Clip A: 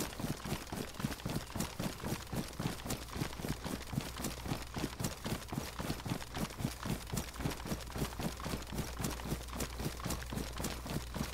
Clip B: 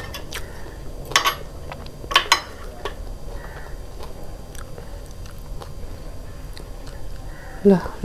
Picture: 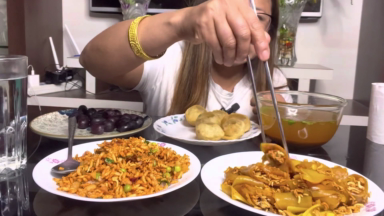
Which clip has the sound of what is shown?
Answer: B